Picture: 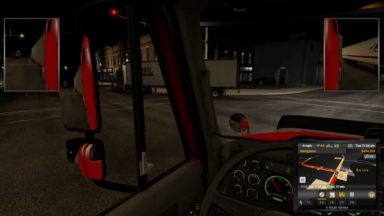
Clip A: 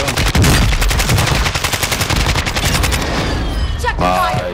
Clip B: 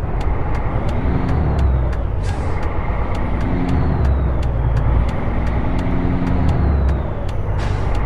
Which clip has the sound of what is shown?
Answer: B